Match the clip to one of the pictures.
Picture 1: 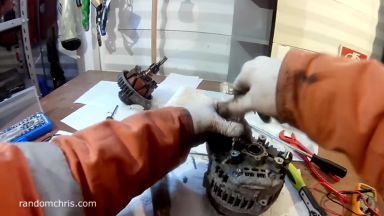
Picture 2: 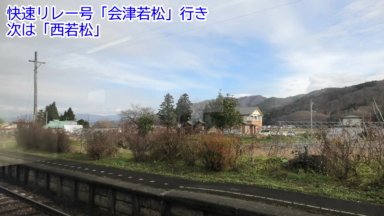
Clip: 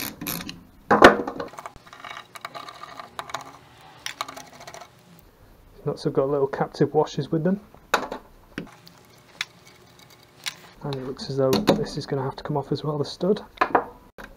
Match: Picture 1